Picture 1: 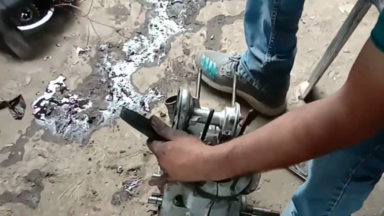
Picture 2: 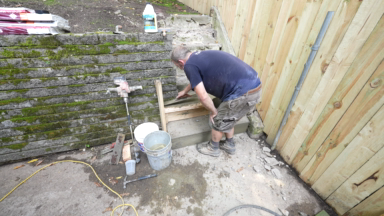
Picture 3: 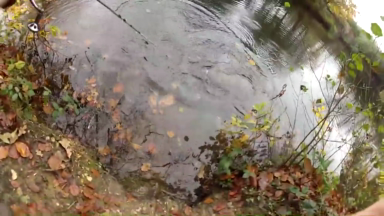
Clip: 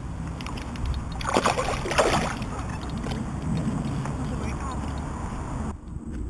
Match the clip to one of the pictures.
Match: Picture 3